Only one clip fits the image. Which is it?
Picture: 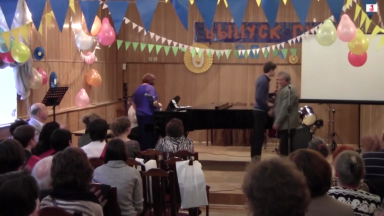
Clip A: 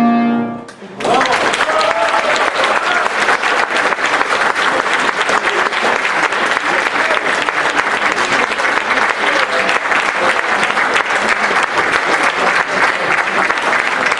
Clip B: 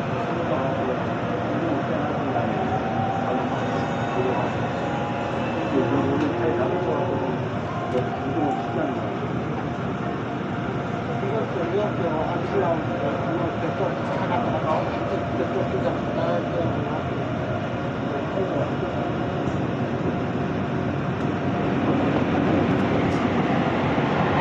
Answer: A